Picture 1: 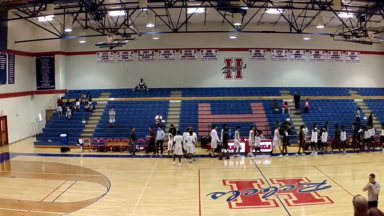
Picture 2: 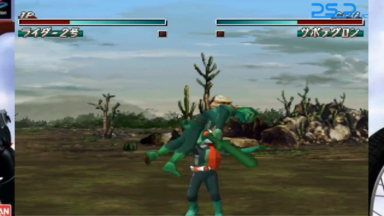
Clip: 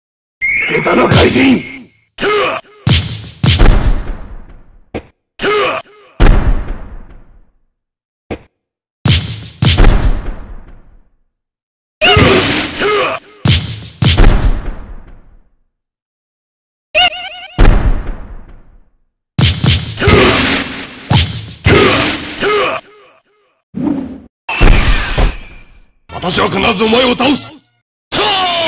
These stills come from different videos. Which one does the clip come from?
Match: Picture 2